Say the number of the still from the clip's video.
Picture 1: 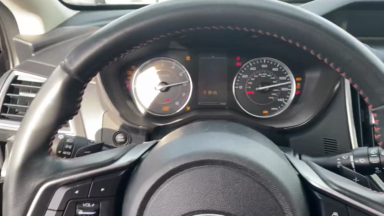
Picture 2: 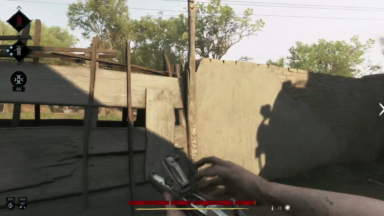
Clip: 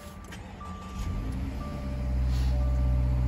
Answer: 1